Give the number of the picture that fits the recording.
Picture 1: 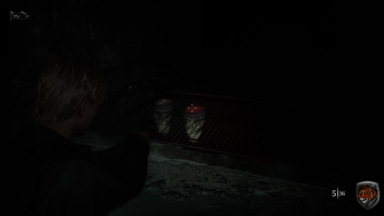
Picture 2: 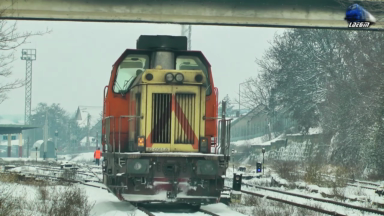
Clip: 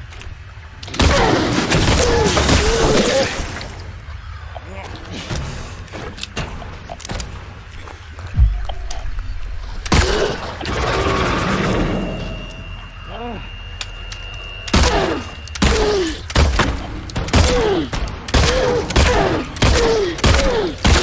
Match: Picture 1